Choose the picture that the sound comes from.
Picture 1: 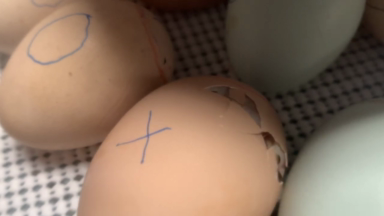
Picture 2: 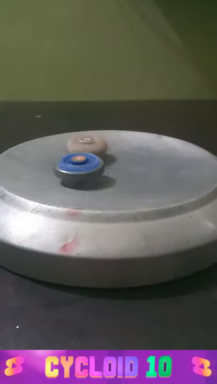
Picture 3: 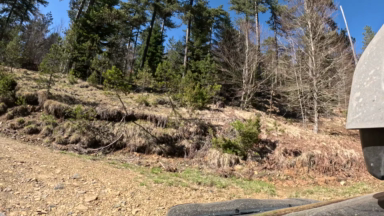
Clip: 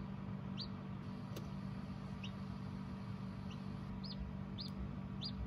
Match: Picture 1